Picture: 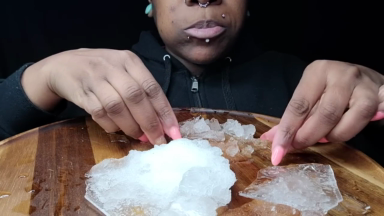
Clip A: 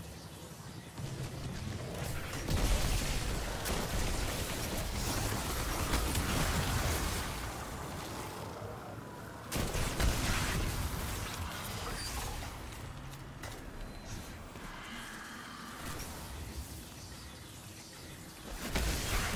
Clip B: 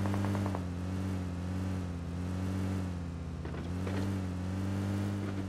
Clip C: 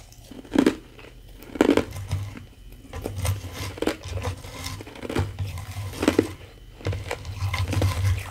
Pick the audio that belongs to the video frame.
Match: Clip C